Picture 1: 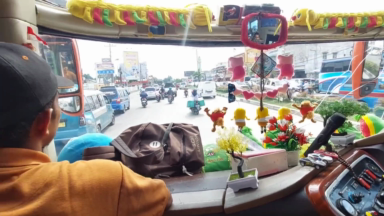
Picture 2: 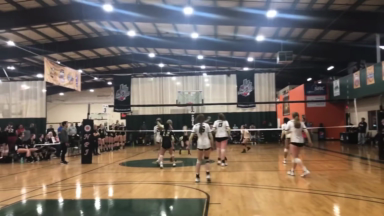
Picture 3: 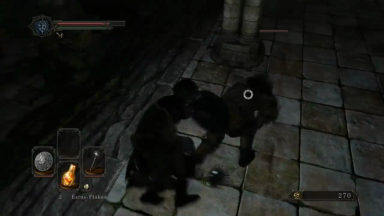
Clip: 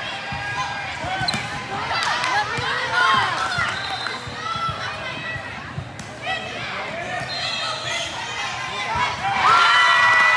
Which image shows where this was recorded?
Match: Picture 2